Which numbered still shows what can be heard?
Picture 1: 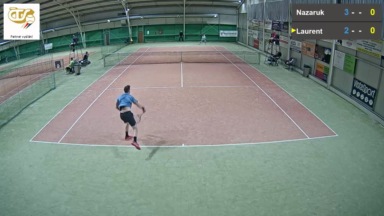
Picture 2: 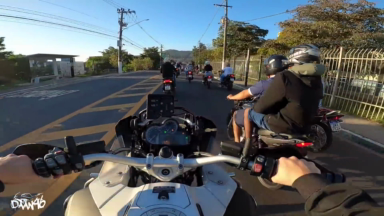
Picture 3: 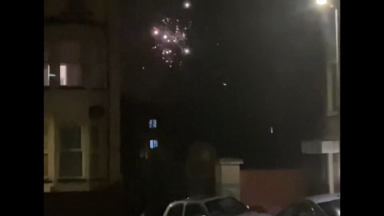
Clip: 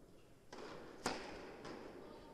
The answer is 1